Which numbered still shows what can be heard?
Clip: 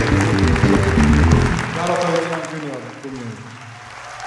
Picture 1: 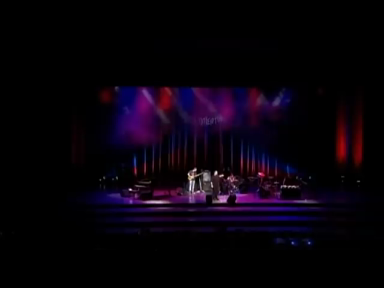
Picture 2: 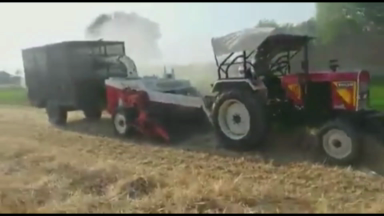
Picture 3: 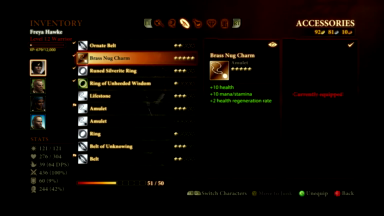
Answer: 1